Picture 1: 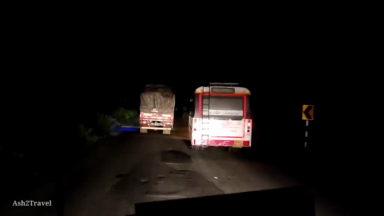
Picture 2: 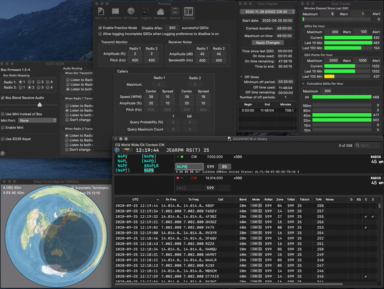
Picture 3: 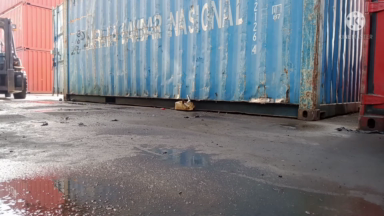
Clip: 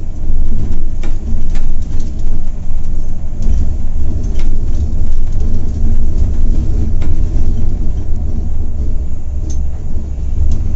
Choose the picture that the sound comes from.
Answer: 1